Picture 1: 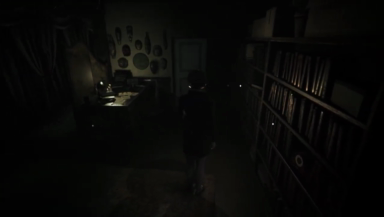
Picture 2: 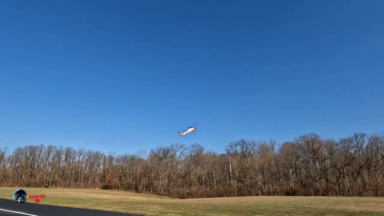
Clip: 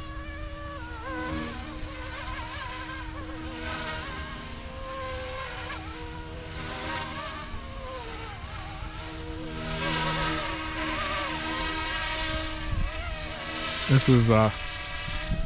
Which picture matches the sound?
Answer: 2